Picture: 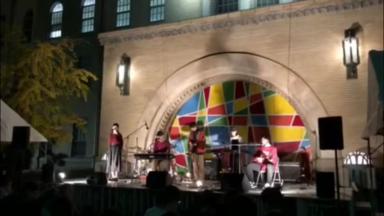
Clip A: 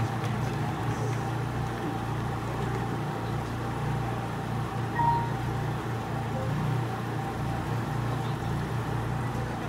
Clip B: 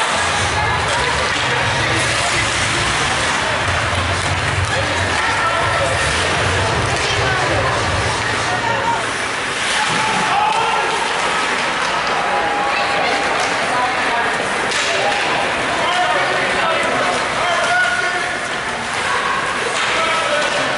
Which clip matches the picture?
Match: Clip A